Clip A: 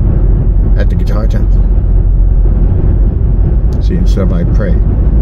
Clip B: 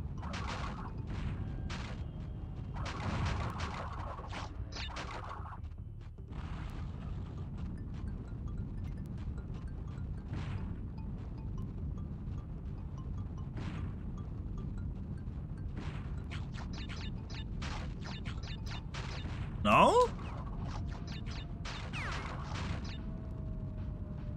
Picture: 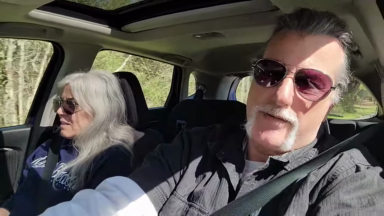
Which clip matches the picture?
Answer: A